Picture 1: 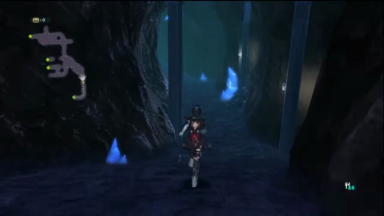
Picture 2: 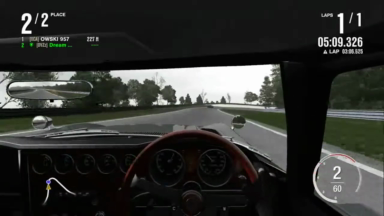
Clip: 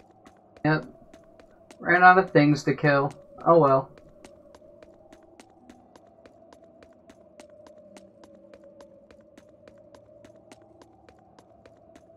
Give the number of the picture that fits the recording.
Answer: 1